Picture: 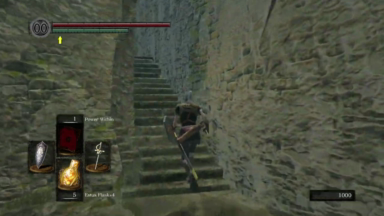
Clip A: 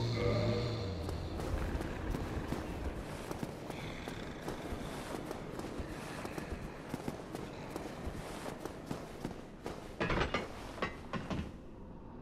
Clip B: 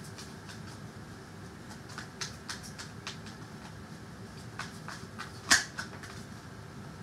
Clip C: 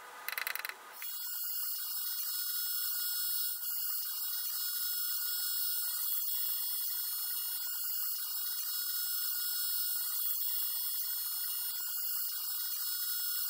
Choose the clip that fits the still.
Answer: A